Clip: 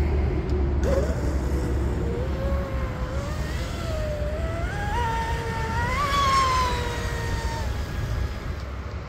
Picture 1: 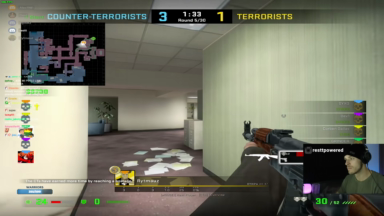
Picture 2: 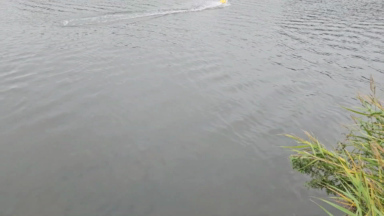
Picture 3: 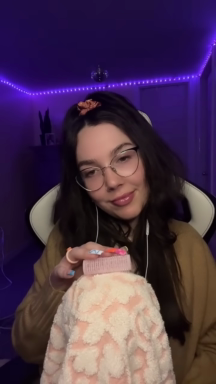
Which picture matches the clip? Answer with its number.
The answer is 2